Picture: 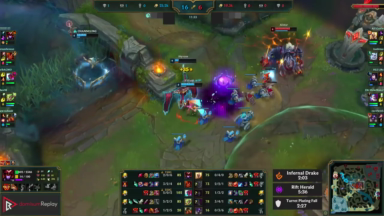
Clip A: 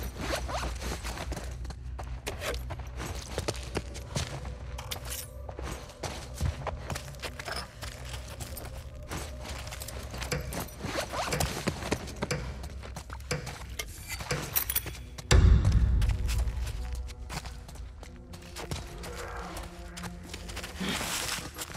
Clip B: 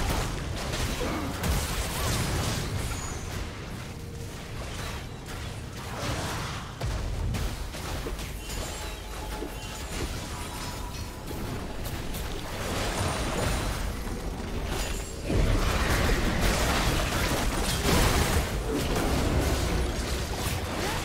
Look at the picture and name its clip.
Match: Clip B